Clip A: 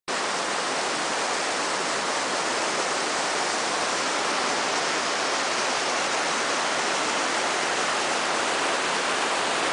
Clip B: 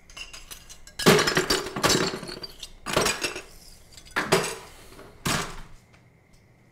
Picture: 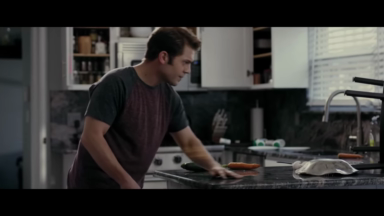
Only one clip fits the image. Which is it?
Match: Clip B